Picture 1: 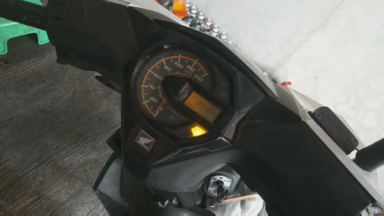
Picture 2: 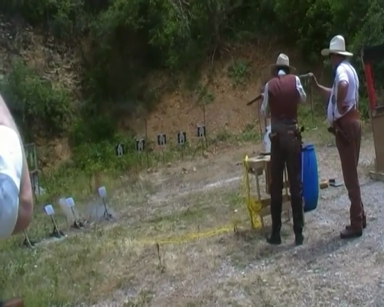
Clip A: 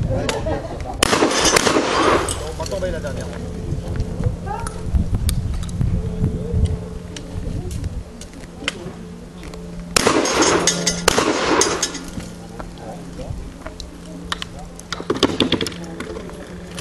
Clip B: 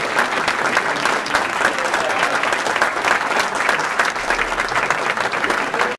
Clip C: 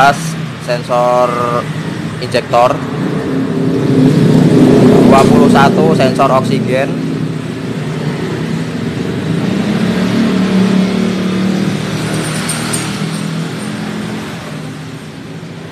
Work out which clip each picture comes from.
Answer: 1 C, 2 A